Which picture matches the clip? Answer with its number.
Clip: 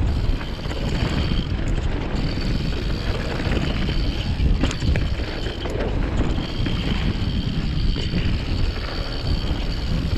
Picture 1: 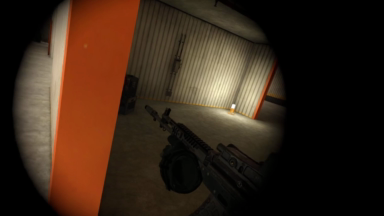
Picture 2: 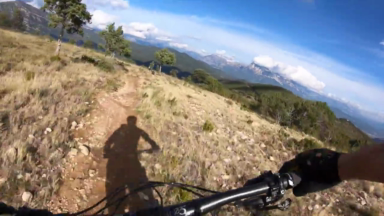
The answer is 2